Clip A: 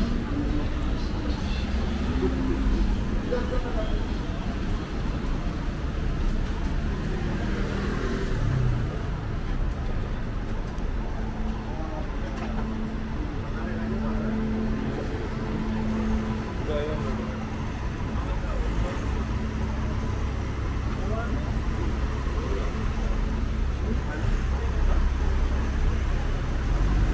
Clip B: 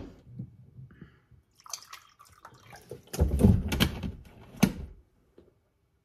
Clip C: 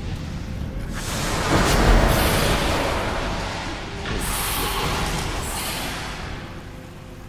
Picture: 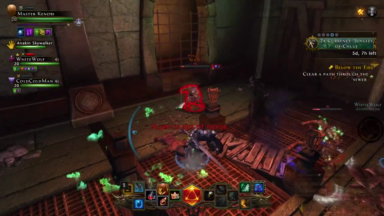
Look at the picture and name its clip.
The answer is C